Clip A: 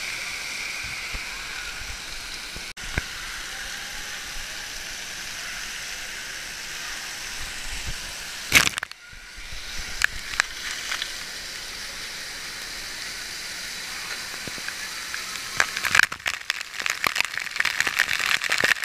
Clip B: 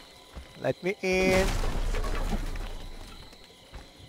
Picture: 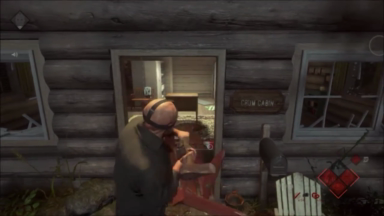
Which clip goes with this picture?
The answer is B